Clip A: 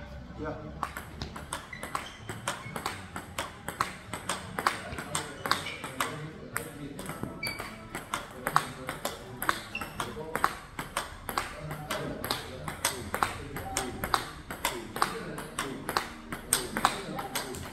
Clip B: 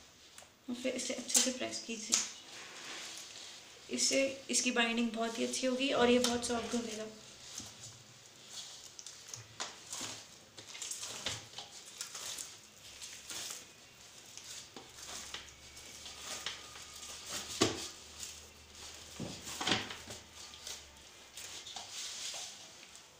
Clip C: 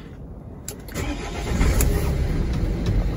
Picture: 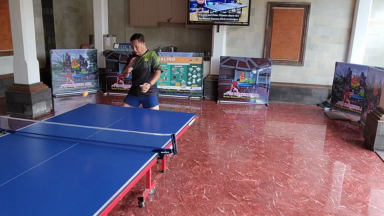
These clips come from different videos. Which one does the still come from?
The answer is A